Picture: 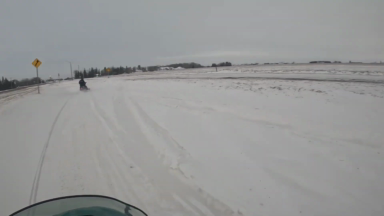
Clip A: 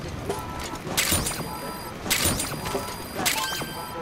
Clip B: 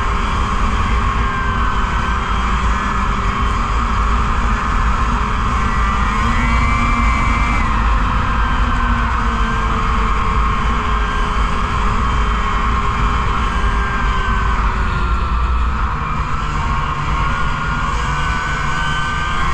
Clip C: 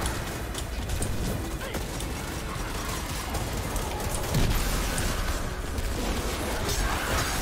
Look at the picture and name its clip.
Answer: B